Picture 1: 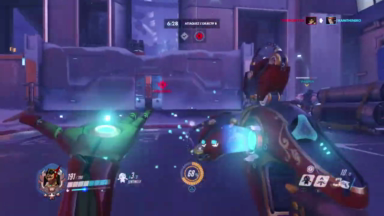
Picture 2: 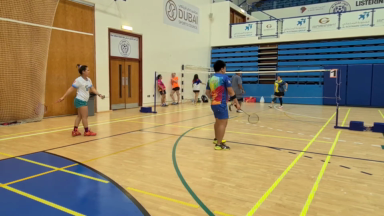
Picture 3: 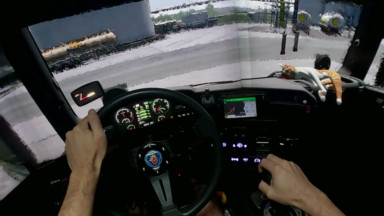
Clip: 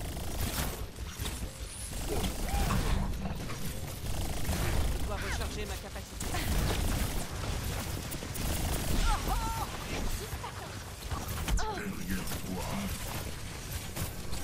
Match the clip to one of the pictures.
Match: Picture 1